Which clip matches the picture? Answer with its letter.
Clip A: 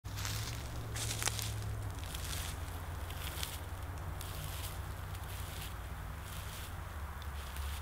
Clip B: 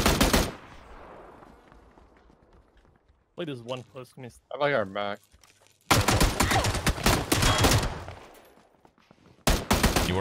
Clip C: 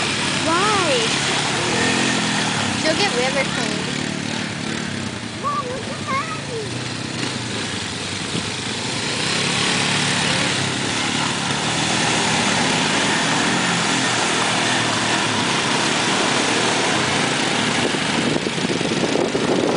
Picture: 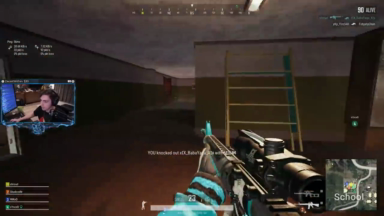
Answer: B